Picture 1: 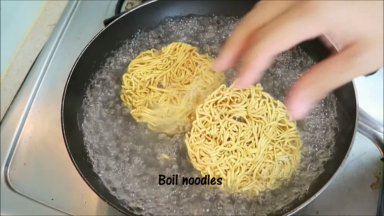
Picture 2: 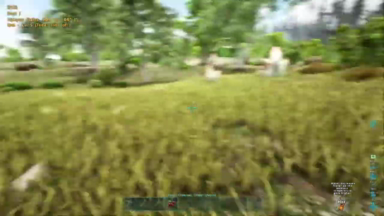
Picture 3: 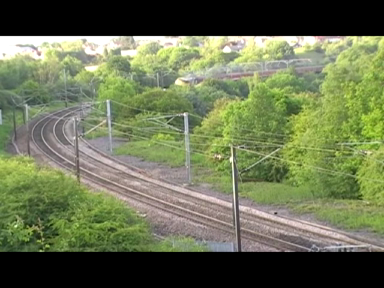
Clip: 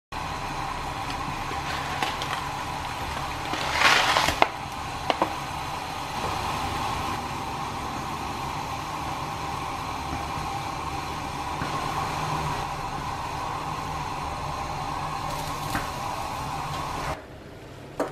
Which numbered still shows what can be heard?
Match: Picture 1